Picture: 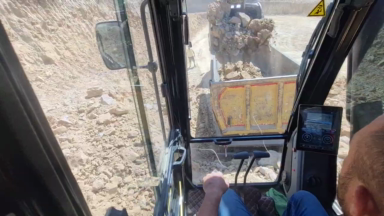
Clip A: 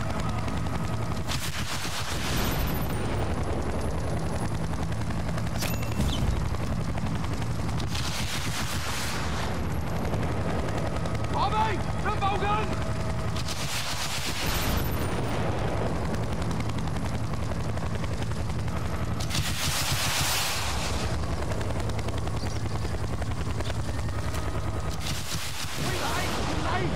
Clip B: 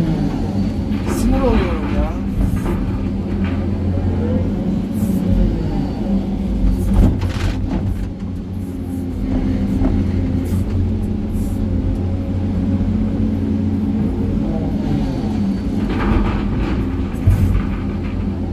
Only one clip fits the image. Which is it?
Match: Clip B